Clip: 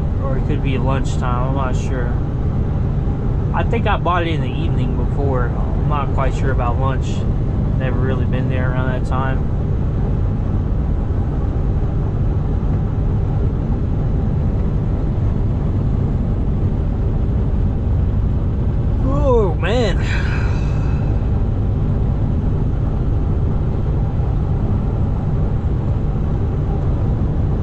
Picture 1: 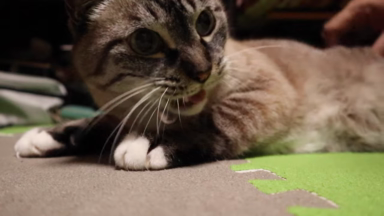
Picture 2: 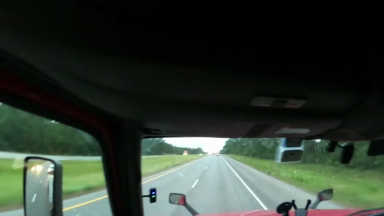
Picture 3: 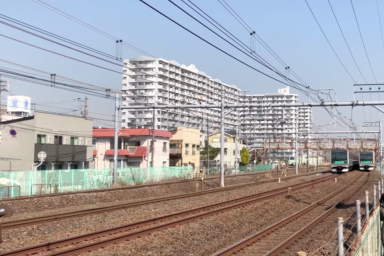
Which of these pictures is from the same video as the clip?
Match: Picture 2